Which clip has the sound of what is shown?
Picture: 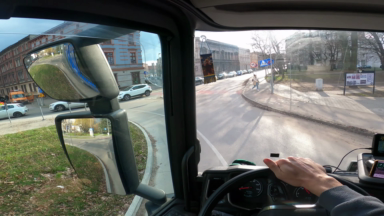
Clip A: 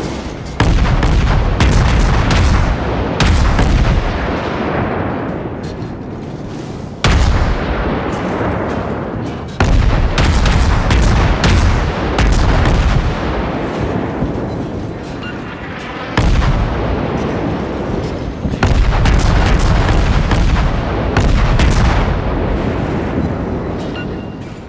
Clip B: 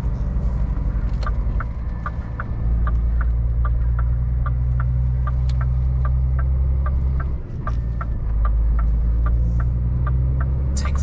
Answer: B